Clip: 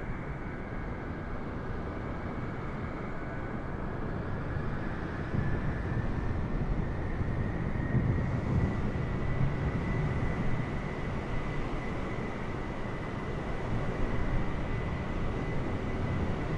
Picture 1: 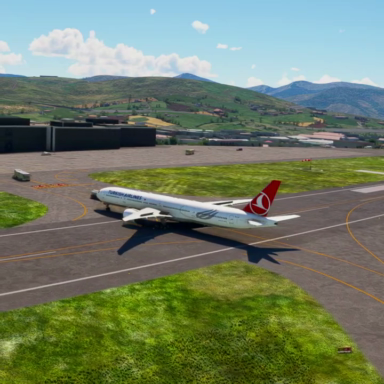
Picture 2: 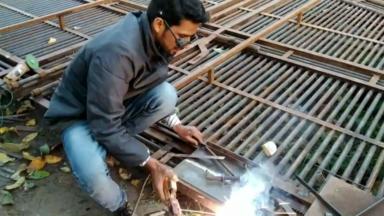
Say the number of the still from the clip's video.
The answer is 1